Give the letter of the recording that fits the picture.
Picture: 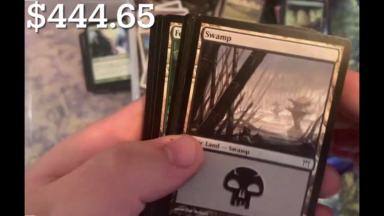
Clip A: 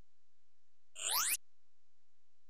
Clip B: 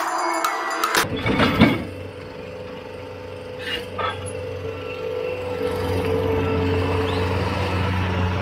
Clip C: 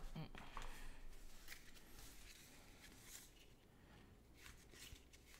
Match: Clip C